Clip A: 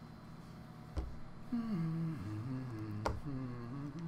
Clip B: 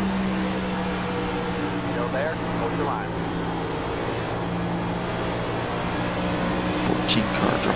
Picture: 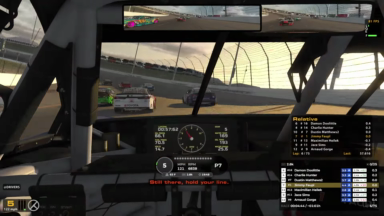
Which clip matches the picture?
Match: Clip B